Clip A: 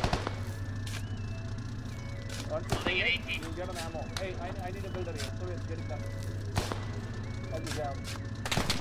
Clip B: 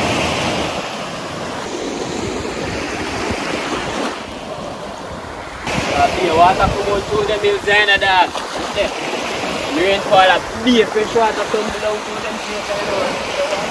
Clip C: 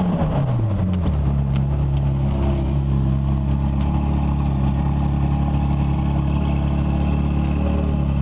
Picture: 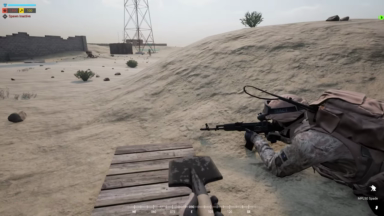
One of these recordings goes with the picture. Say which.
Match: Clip A